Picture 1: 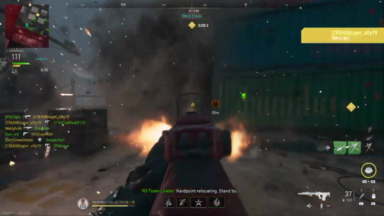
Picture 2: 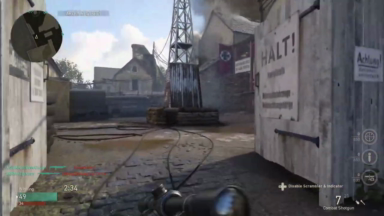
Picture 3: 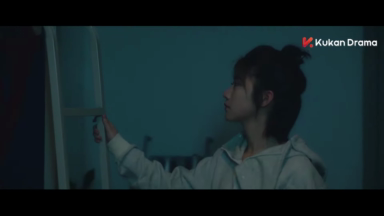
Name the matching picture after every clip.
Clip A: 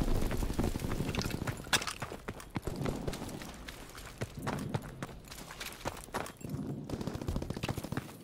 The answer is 2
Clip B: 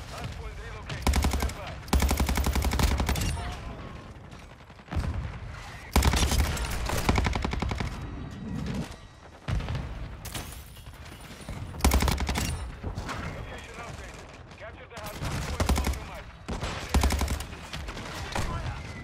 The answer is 1